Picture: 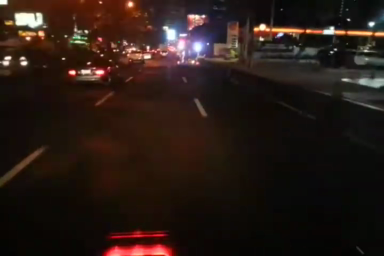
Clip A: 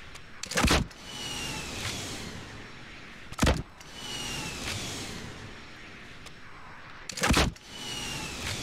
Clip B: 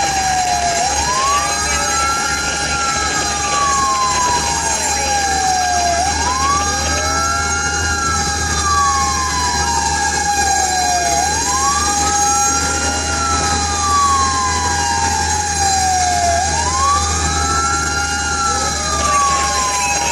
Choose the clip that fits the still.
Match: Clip B